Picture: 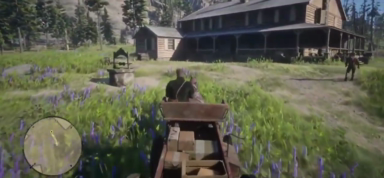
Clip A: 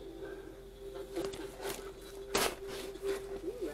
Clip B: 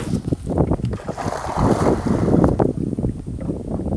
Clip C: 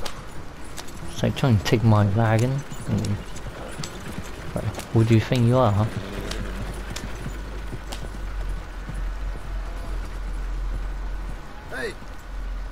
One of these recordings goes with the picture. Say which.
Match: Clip C